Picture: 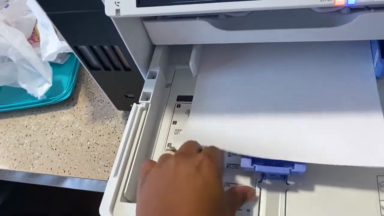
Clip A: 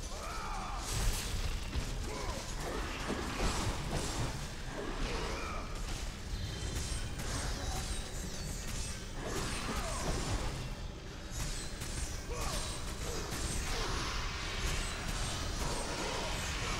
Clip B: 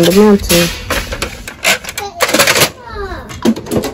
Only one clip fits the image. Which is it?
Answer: B